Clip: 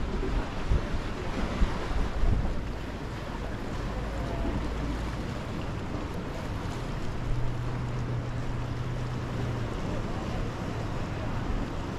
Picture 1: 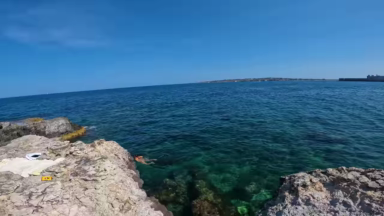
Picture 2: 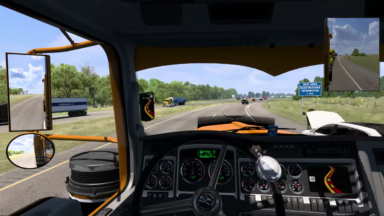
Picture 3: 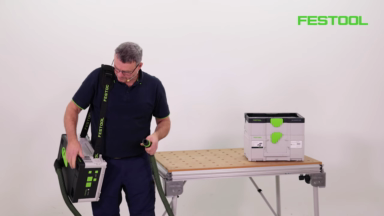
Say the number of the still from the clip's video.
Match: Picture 1